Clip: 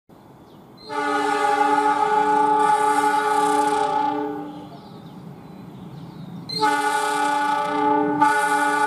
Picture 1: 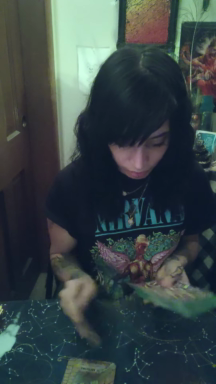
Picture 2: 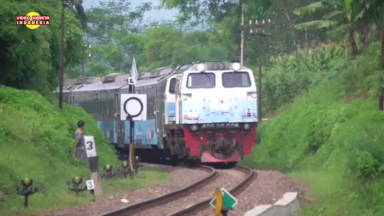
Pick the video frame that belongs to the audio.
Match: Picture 2